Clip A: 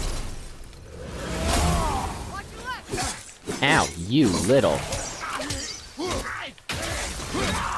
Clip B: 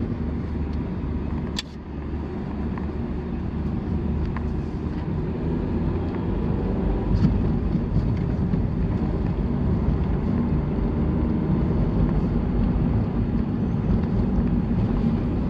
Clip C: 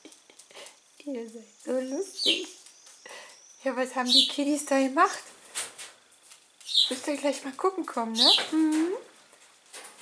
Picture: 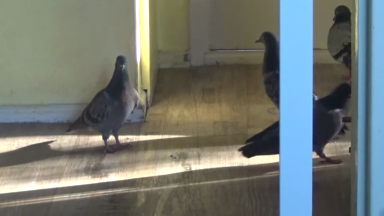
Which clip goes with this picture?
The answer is C